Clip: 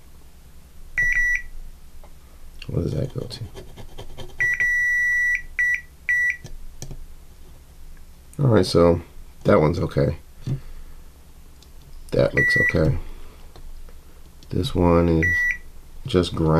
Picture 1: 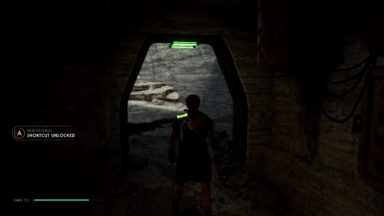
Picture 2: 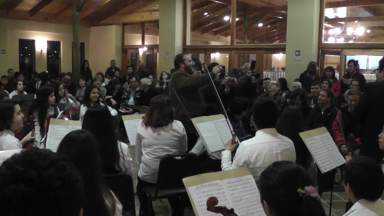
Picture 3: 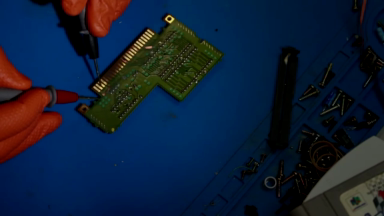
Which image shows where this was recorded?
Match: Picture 3